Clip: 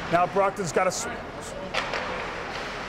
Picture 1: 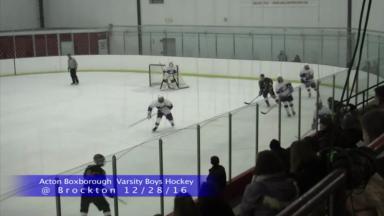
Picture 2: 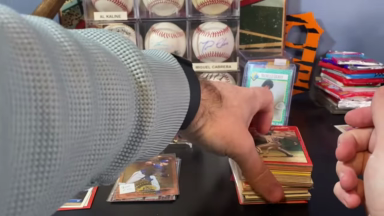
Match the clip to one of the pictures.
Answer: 1